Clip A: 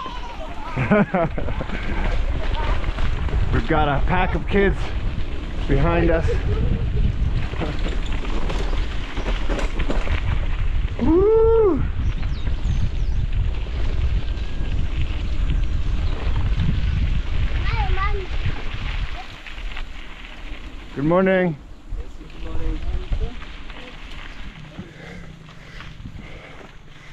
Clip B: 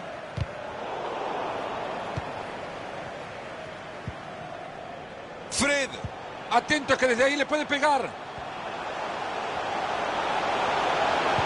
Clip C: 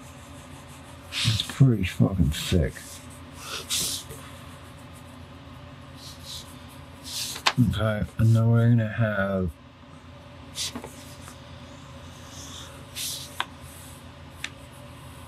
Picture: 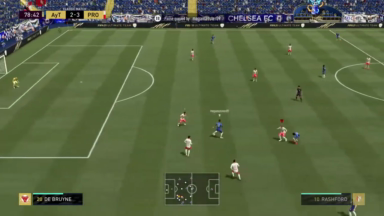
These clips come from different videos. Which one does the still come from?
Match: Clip B